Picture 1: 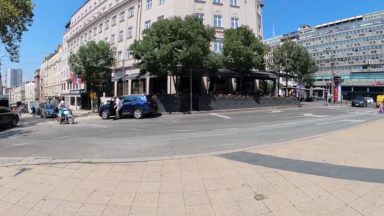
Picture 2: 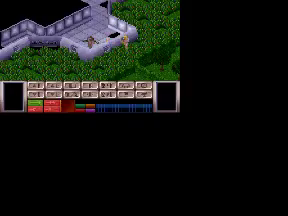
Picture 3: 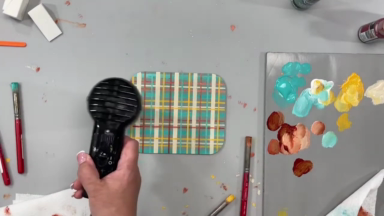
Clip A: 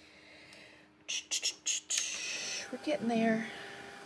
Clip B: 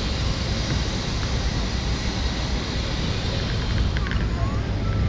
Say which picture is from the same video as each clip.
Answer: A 3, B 1